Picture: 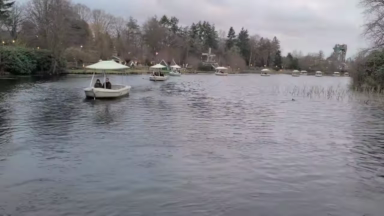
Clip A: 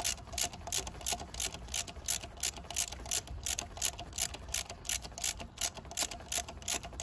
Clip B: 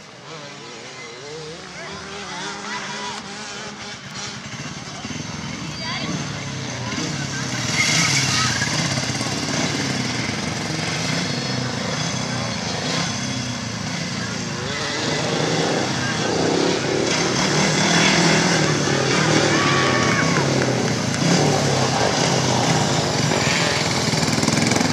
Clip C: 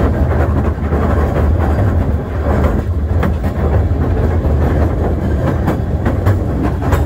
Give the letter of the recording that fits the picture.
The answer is C